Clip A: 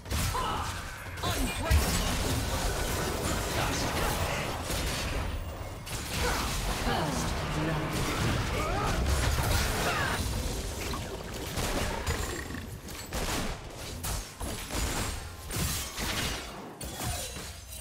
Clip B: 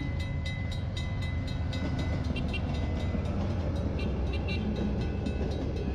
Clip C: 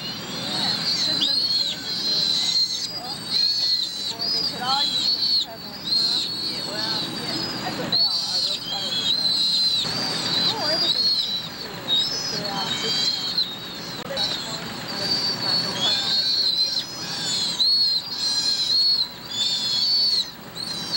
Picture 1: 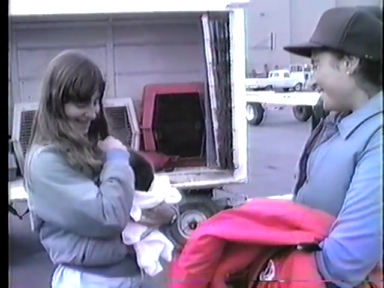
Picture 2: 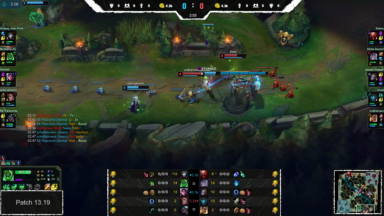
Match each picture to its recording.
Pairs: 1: C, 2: A